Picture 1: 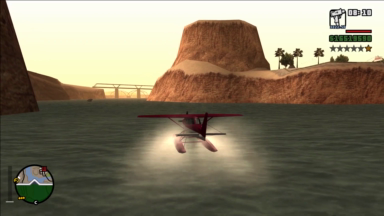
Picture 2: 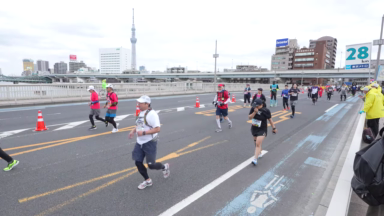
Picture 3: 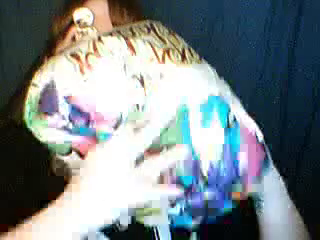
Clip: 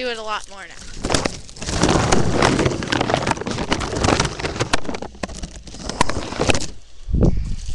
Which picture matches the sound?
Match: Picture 3